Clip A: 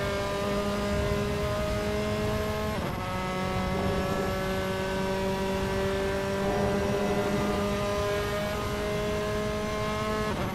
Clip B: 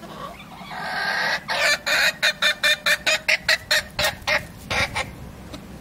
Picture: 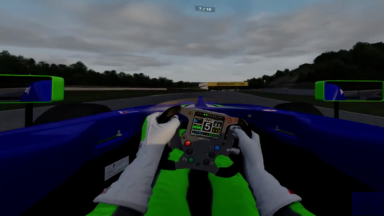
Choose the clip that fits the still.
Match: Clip A